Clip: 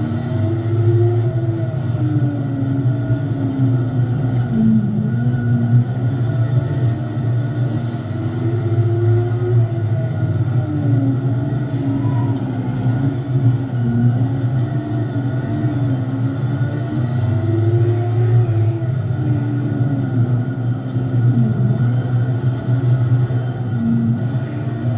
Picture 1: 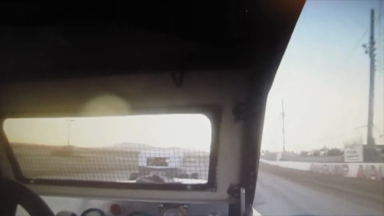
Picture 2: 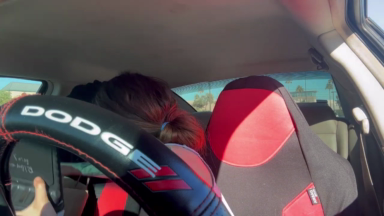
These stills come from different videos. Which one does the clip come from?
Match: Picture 1